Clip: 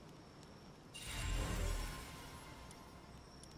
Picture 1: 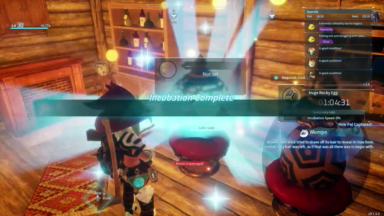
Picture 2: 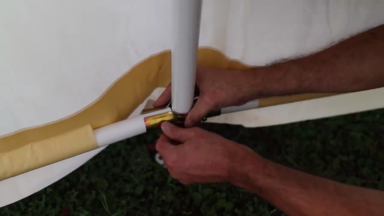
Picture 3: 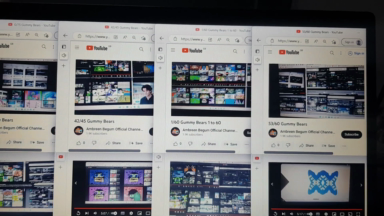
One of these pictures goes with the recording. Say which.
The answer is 1